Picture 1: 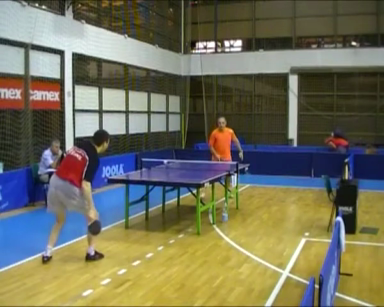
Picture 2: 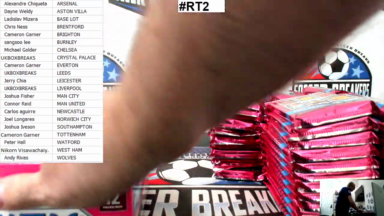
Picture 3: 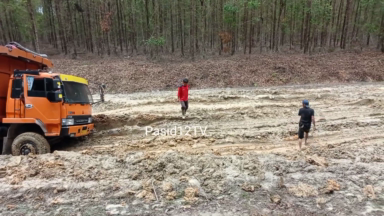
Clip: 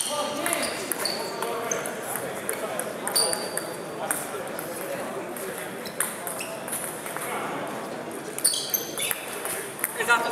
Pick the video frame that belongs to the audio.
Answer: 1